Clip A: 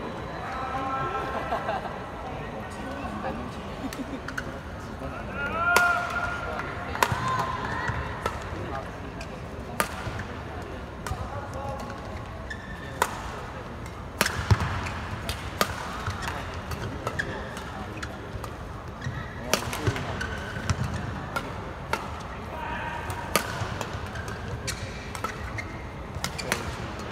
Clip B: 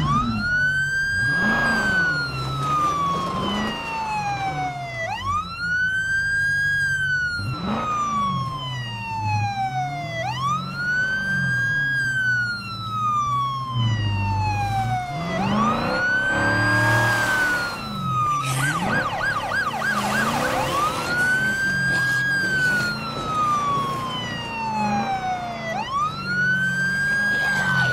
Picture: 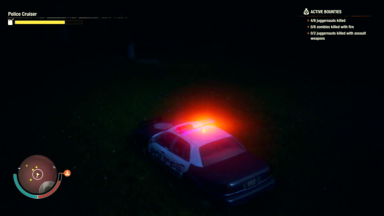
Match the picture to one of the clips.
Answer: B